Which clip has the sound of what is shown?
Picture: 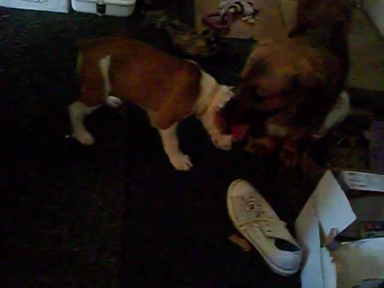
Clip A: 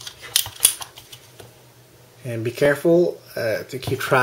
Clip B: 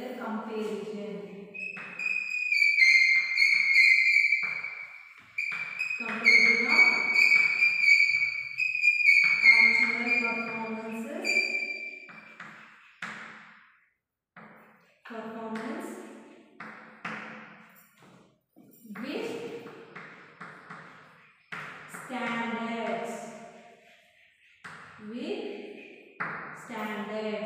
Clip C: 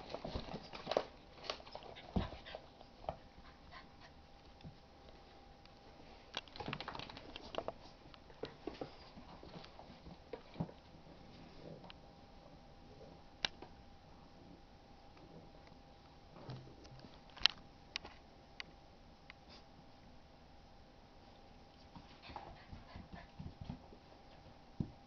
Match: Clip C